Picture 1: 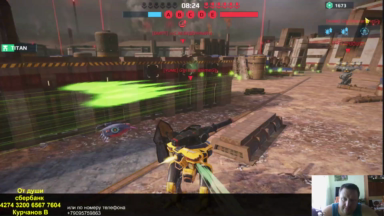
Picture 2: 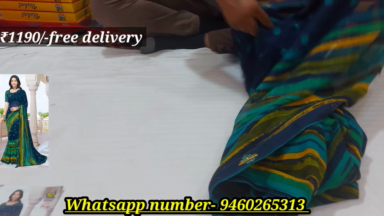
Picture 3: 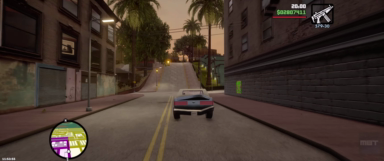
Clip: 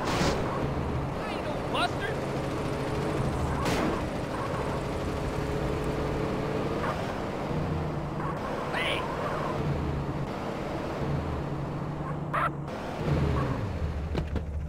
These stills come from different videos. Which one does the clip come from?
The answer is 3